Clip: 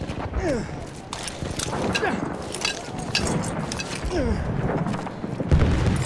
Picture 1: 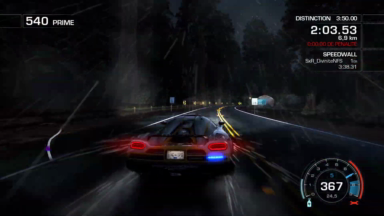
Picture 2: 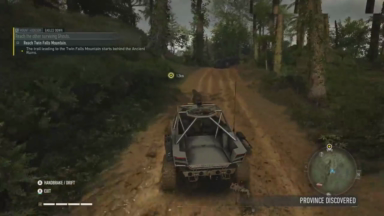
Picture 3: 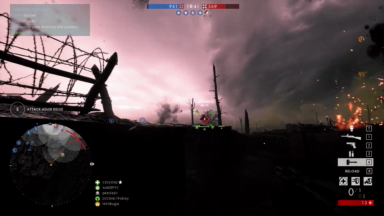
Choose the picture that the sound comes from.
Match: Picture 3